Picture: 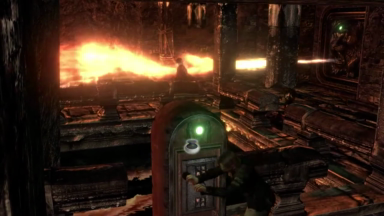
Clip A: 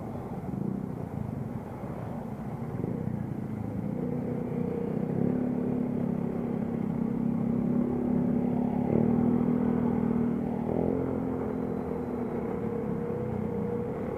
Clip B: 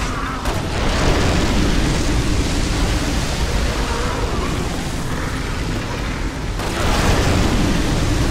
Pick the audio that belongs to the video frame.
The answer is B